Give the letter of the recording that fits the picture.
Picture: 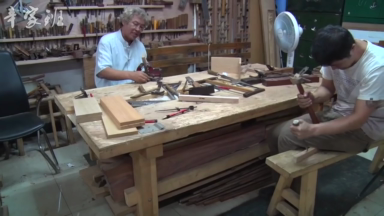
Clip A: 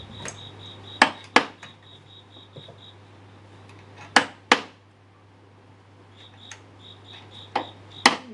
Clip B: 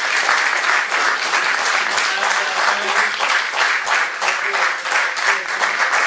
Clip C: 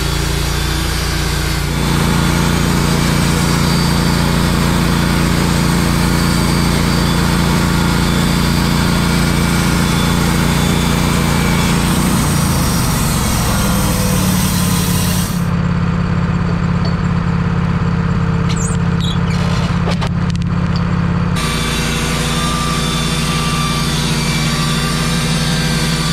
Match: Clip A